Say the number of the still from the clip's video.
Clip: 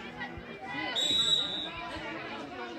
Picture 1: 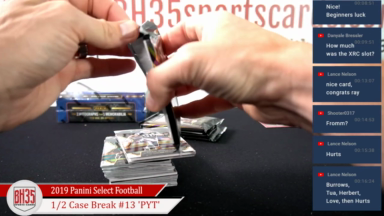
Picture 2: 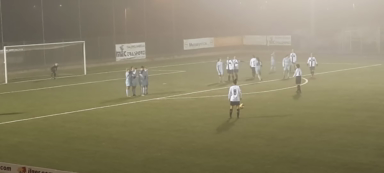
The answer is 2